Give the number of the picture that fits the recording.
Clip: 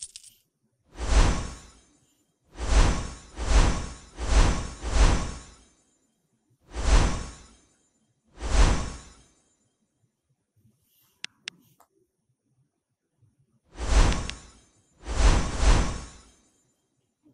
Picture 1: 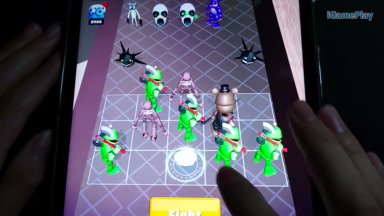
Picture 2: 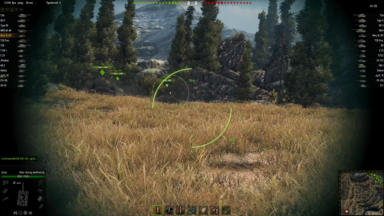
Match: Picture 1